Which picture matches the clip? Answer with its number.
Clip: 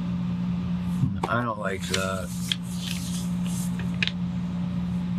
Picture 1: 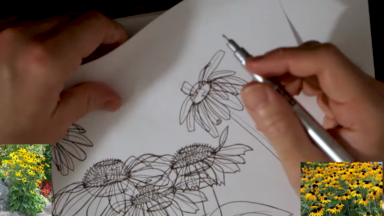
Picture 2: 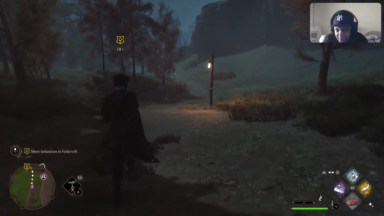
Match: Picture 1